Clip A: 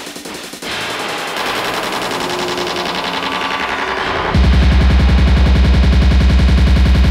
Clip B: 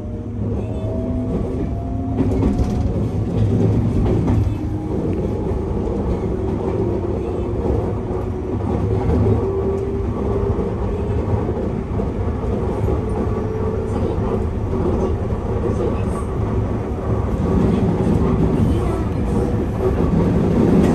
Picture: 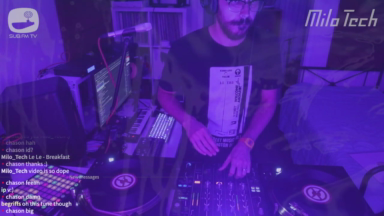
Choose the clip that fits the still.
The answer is A